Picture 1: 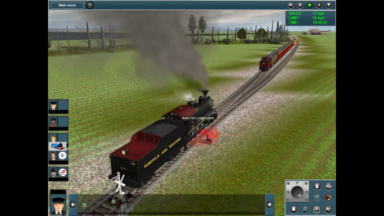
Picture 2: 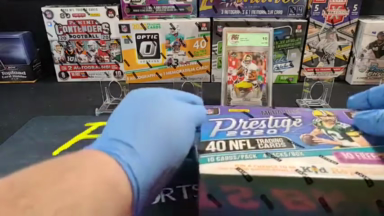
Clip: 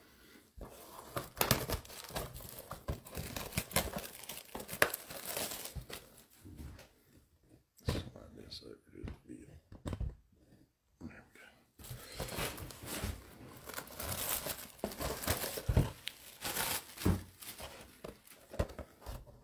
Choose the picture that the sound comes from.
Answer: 2